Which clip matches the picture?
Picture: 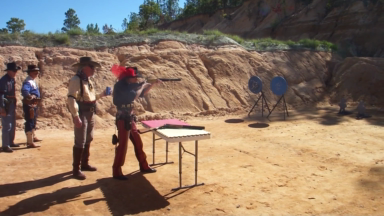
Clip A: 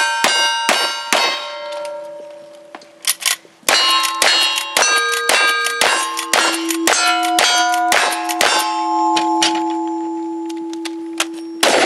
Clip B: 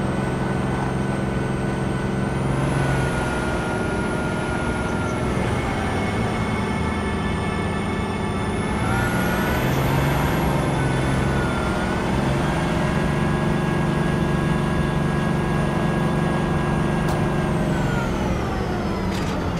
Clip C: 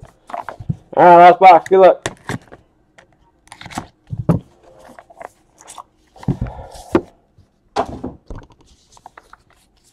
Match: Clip A